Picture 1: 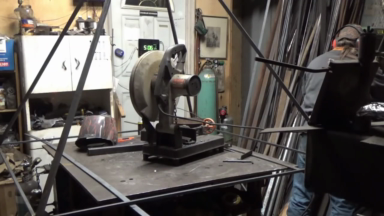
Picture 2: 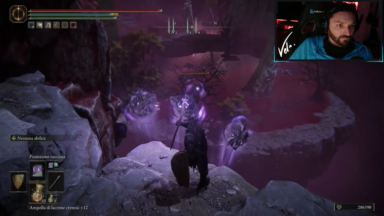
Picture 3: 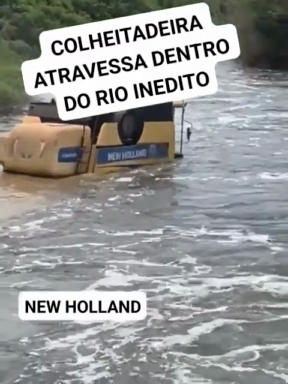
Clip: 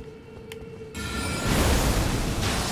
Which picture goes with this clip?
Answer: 2